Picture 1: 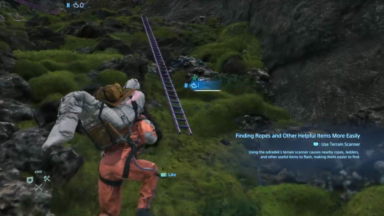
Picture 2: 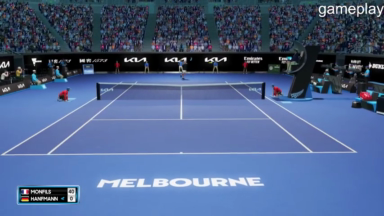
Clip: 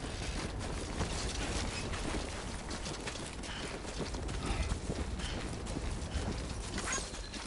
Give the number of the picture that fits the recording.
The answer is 1